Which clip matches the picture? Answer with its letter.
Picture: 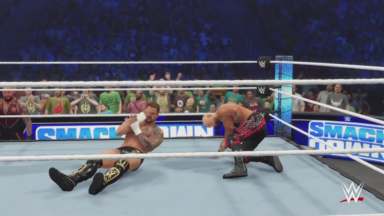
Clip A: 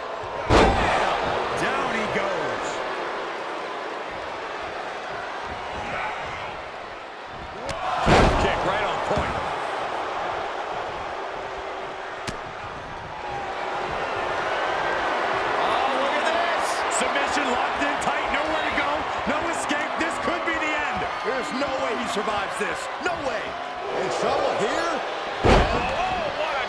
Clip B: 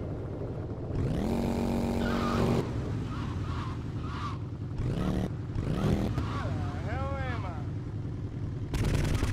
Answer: A